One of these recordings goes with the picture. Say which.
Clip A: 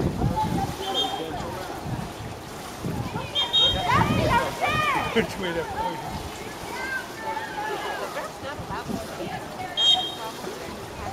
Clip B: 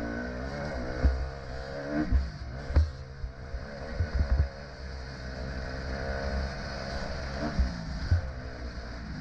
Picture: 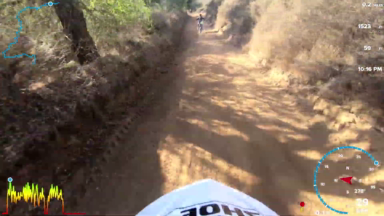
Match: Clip B